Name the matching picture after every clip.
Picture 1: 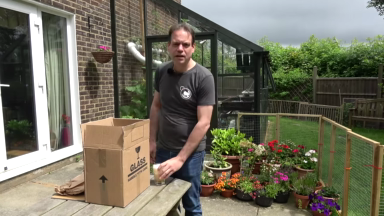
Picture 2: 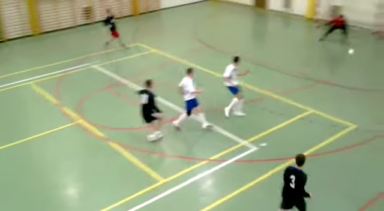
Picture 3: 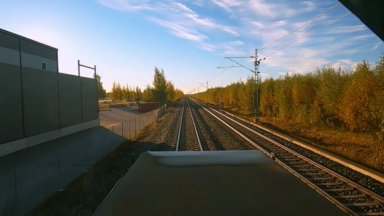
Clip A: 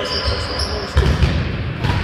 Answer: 2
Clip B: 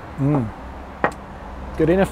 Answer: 1